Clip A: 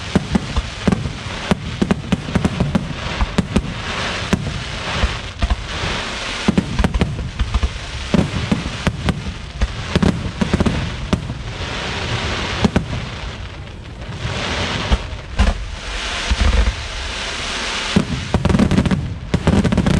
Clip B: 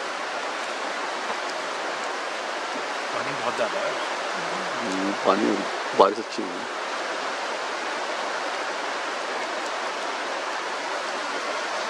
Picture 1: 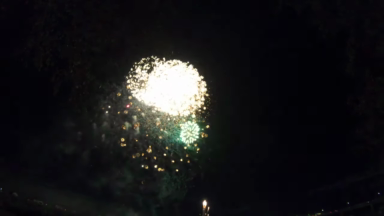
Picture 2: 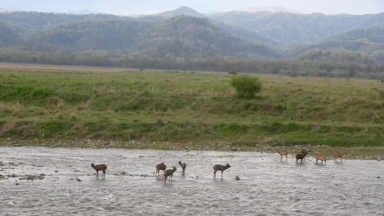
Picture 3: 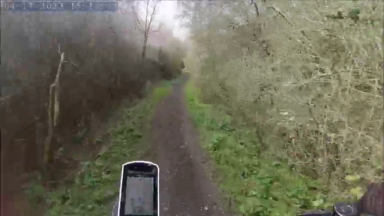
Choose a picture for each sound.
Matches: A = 1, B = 2